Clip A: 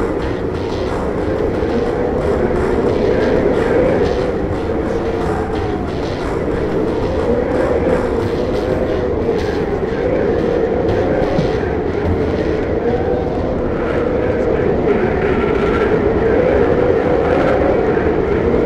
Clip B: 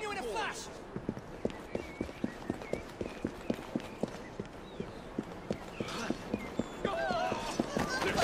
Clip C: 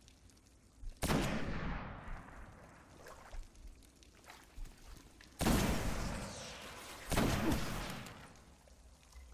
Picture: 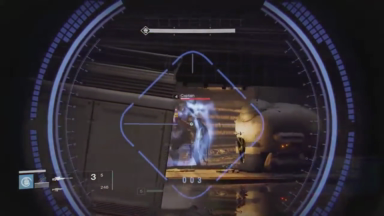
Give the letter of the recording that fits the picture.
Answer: C